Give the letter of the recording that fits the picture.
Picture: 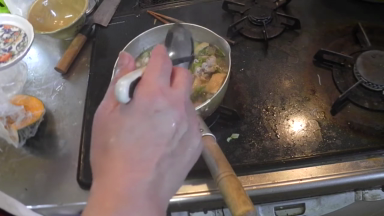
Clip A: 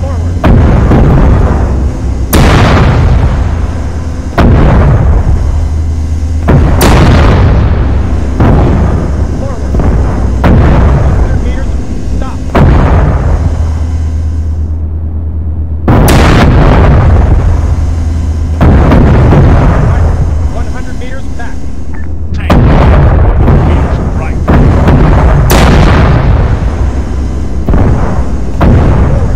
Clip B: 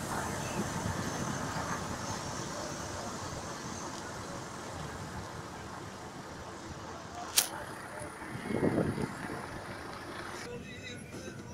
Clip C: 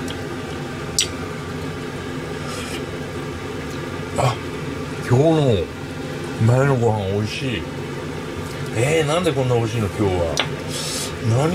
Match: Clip C